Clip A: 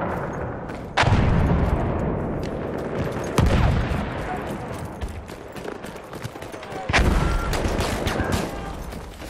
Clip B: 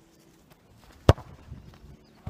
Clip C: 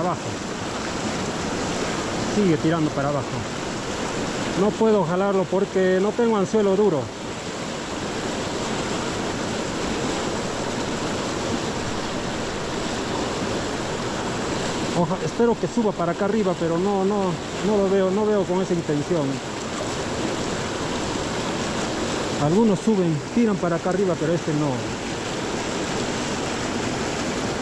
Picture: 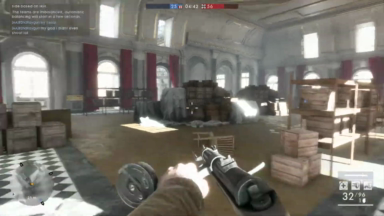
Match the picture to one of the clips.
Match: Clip A